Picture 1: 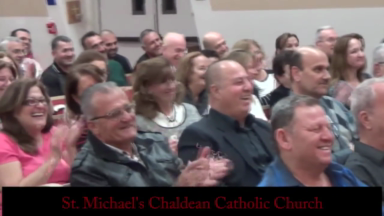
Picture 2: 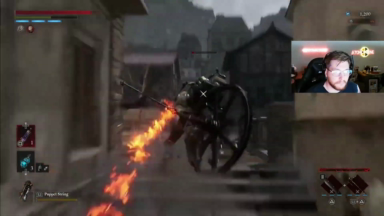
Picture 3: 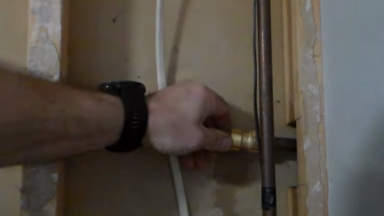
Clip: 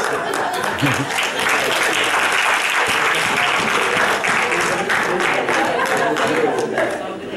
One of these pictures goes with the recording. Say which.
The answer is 1